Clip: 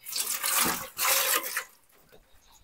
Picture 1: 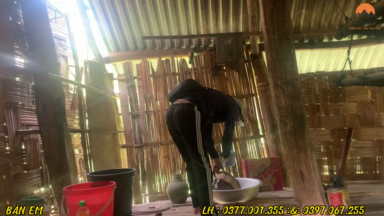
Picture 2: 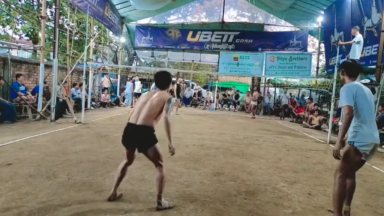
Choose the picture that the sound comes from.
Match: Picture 1